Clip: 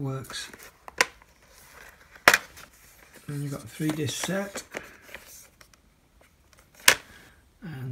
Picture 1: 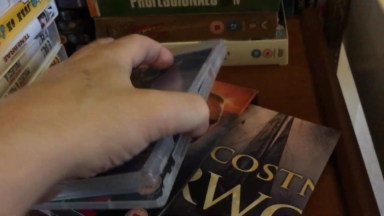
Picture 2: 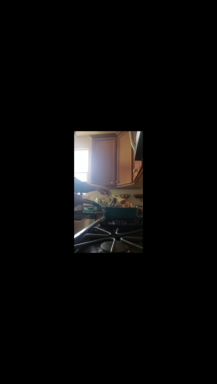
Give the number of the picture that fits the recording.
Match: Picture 1